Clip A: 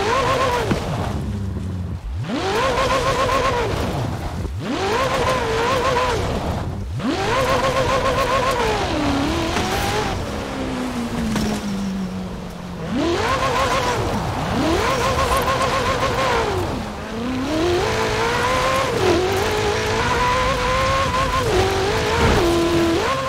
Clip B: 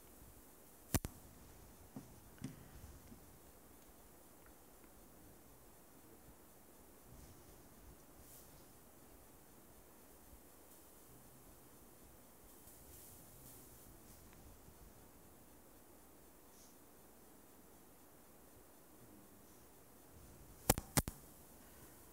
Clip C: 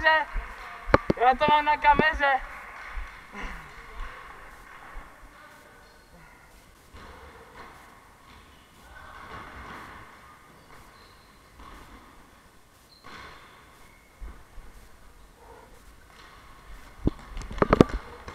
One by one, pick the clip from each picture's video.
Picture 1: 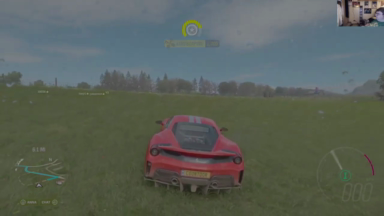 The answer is A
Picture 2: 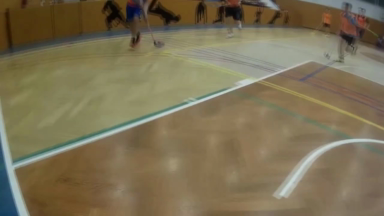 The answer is C